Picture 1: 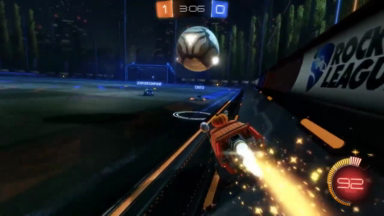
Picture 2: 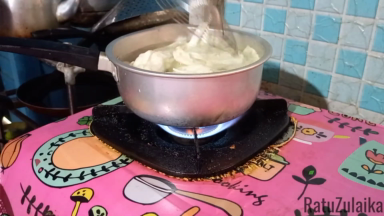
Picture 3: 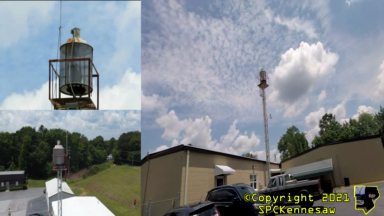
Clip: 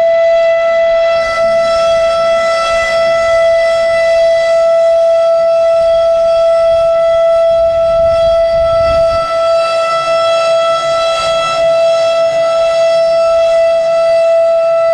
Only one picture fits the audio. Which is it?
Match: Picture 3